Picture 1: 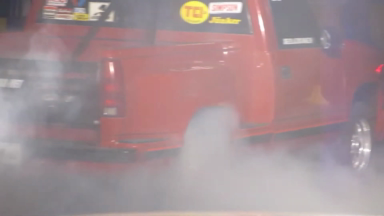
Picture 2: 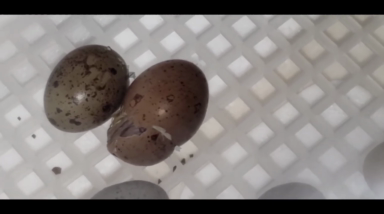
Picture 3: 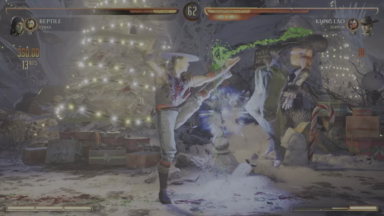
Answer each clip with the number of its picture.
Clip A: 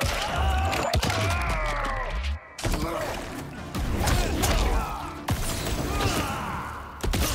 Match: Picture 3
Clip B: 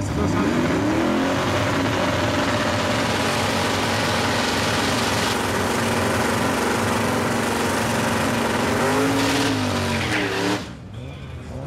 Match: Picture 1